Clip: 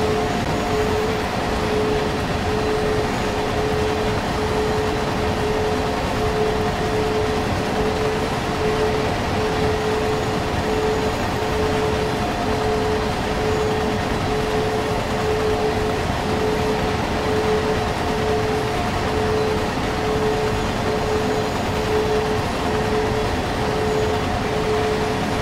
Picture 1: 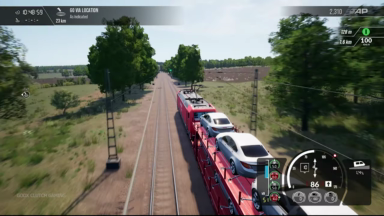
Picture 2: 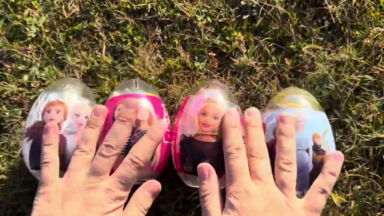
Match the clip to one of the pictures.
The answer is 1